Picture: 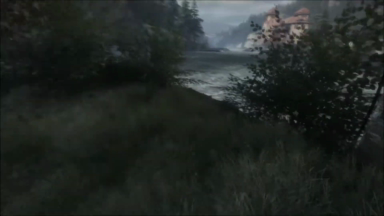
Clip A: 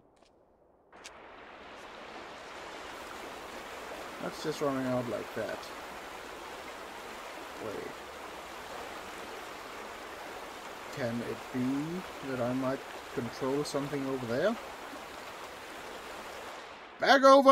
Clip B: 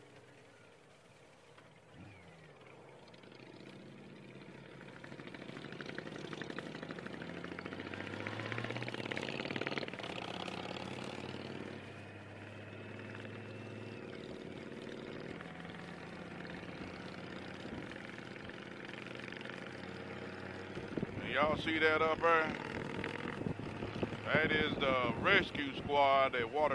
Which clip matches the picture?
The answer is A